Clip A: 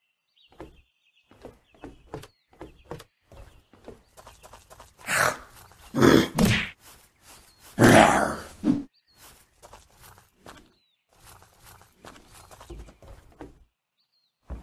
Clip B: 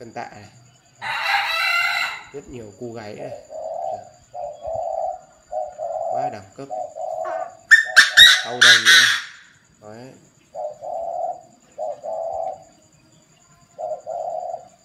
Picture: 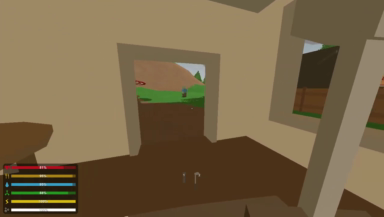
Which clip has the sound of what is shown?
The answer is A